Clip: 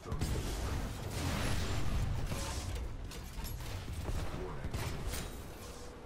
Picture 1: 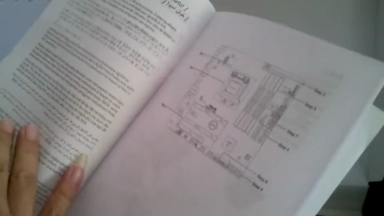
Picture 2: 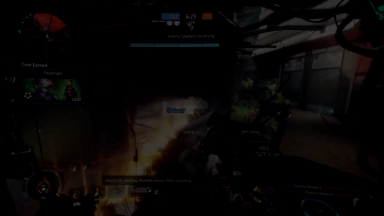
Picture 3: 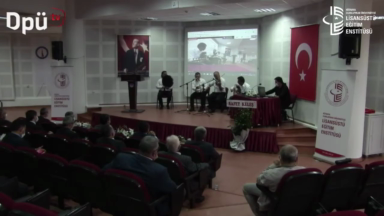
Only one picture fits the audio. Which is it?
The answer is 2